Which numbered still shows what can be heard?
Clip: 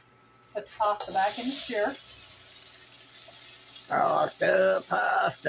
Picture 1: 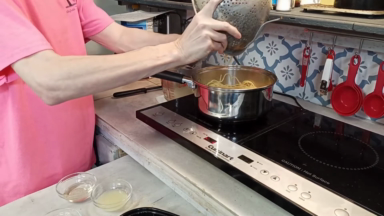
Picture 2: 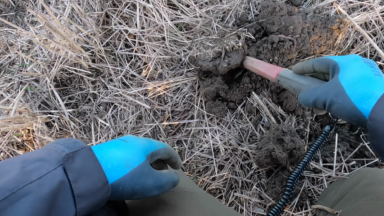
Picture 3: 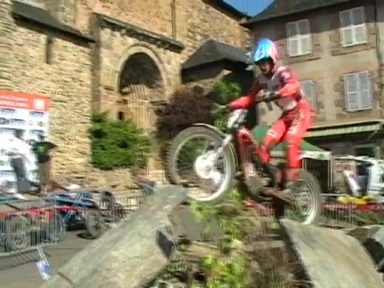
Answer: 1